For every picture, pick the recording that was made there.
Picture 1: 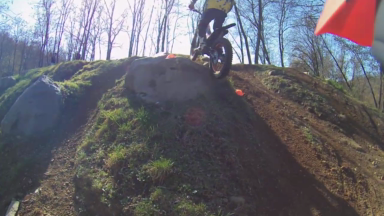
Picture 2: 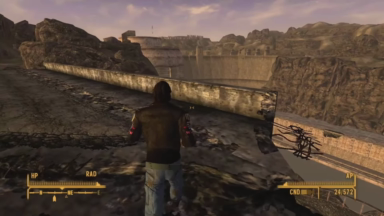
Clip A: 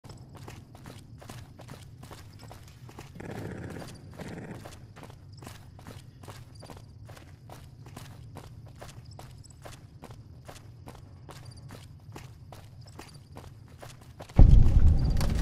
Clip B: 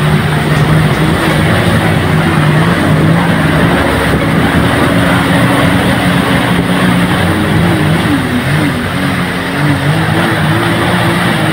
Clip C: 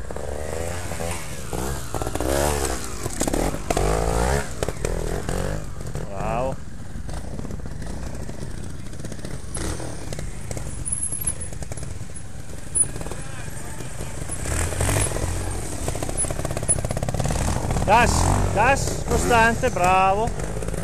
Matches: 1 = C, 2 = A